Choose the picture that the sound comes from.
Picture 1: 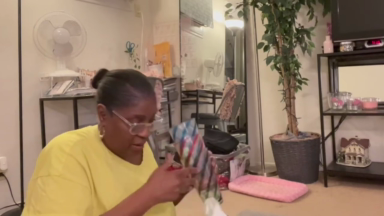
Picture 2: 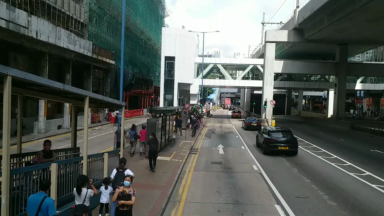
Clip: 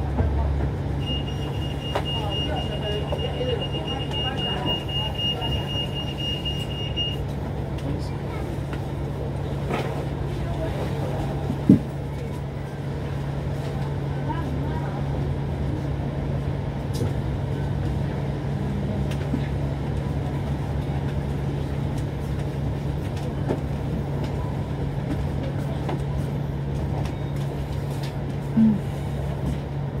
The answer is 2